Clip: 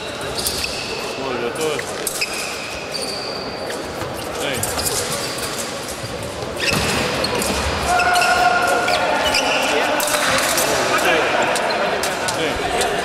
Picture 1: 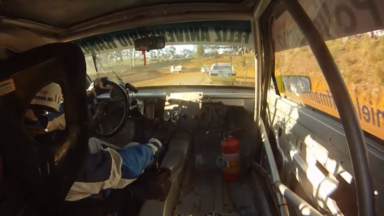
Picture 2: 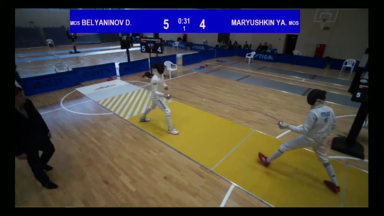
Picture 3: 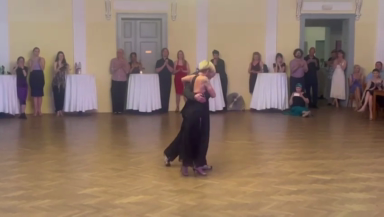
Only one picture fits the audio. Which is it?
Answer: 2